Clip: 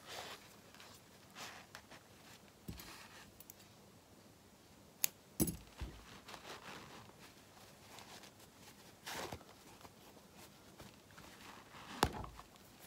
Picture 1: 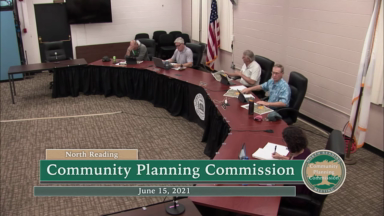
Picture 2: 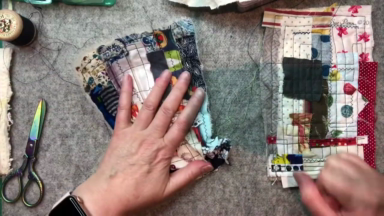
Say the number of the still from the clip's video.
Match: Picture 2